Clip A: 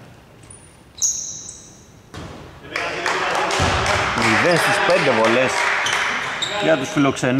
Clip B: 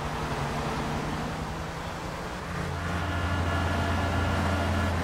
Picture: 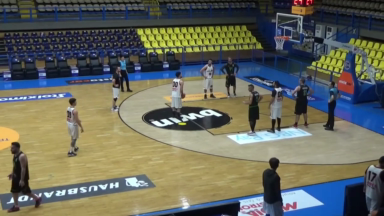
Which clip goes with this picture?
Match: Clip A